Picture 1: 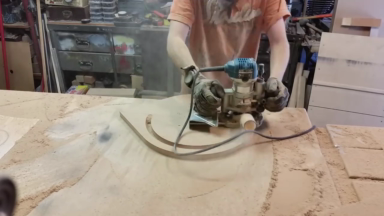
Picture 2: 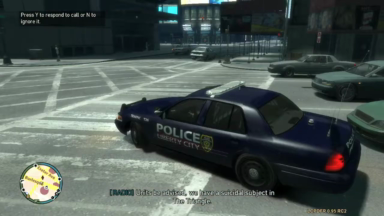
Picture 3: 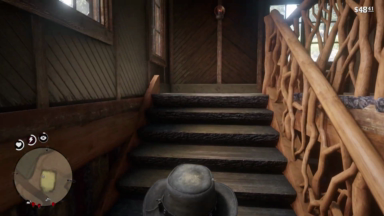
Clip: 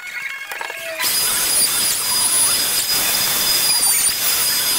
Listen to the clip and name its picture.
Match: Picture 1